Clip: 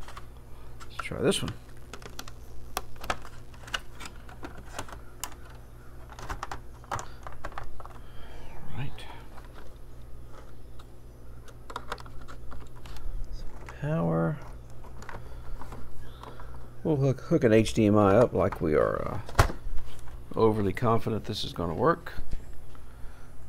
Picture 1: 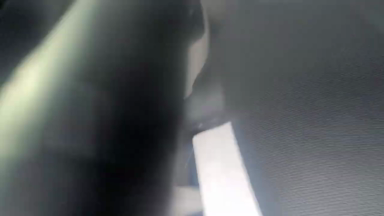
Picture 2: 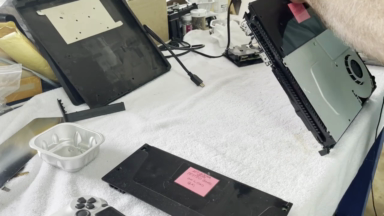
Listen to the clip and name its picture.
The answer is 2